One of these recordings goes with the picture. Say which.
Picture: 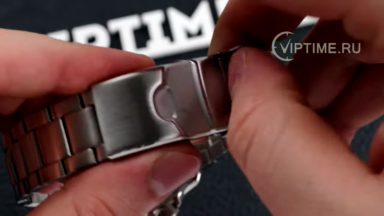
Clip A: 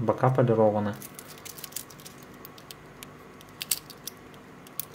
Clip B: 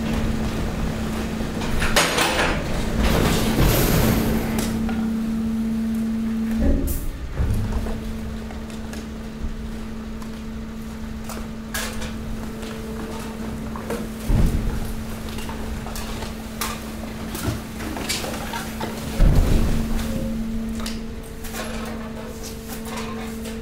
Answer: A